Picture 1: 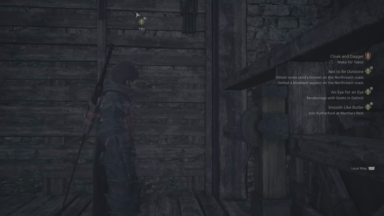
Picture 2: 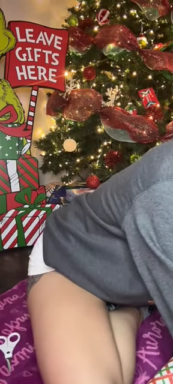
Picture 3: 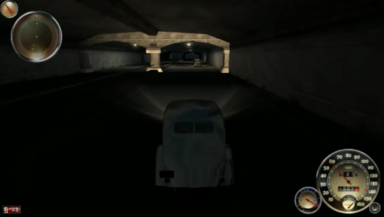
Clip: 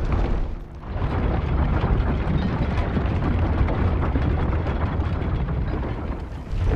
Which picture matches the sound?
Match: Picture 1